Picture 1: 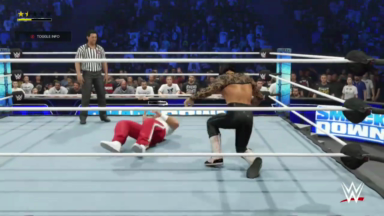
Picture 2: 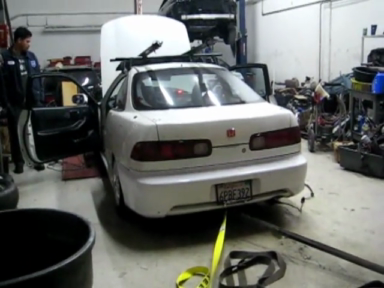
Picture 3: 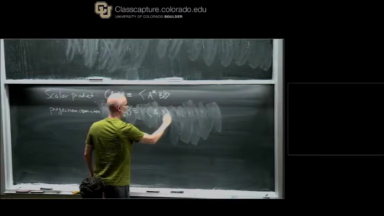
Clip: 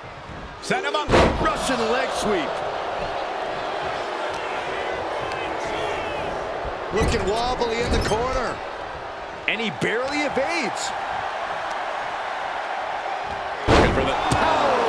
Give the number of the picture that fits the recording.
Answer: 1